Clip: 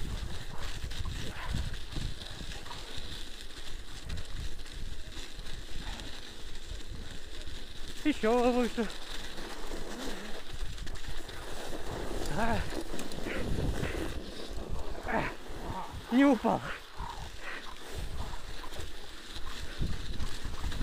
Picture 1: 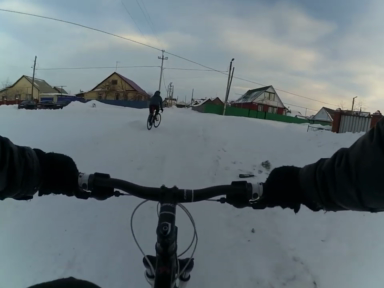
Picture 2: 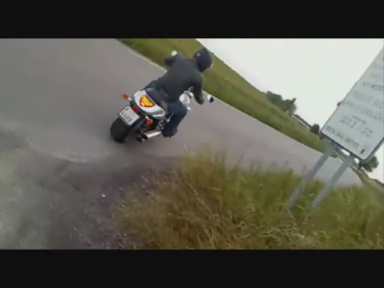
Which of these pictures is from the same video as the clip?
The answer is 1